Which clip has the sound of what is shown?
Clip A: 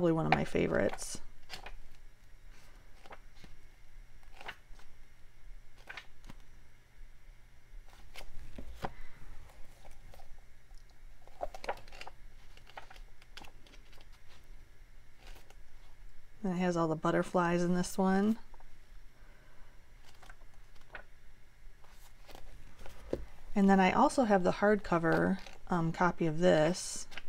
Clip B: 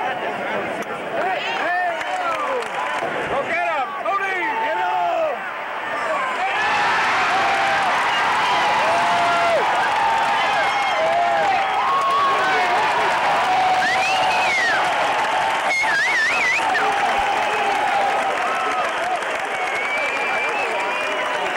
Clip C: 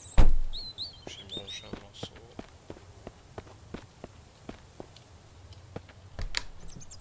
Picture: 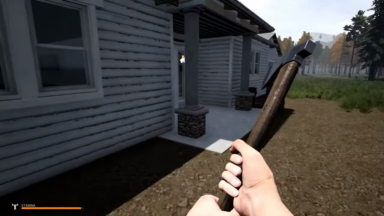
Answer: C